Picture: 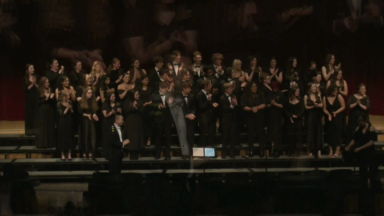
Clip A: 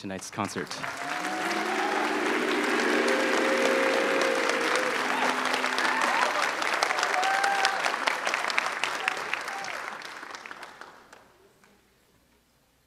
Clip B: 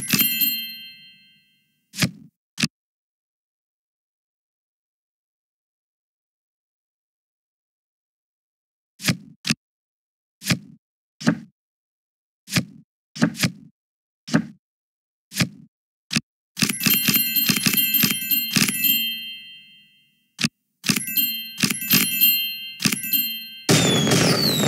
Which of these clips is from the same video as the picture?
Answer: A